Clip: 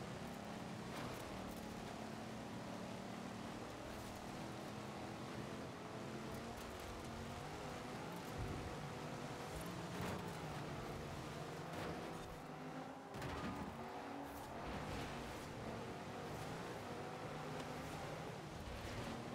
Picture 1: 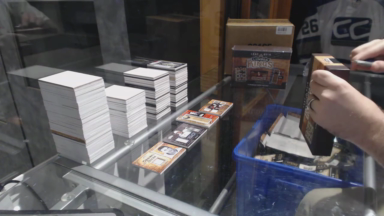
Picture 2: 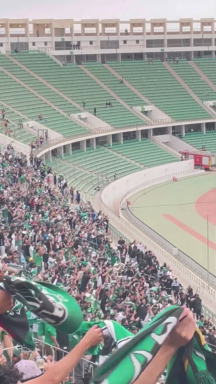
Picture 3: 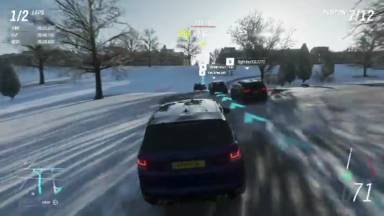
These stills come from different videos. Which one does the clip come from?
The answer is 3